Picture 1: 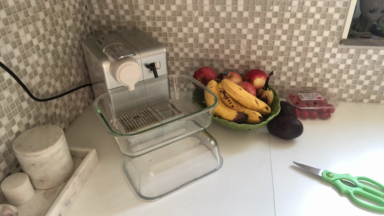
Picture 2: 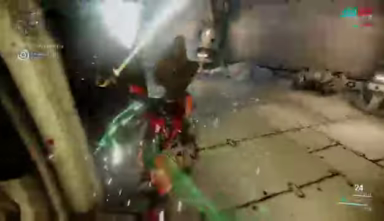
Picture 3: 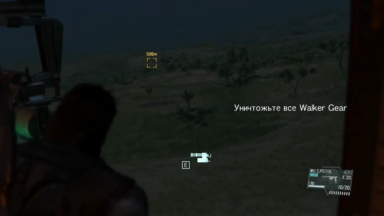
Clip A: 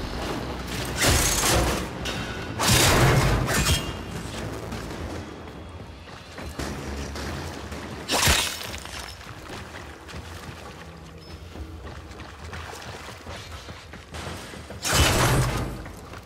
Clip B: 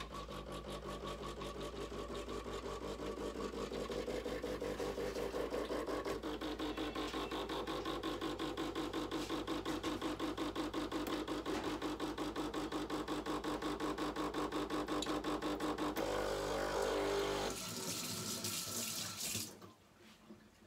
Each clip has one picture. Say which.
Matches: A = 2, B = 1